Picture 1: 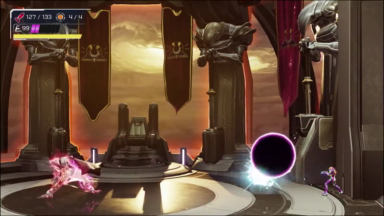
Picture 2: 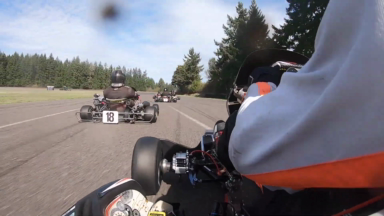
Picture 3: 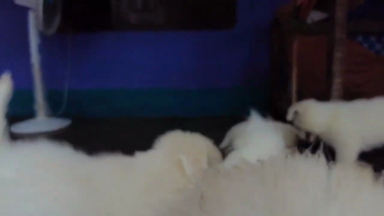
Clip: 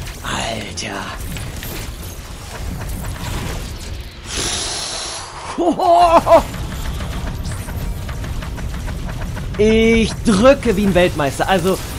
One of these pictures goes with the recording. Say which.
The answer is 1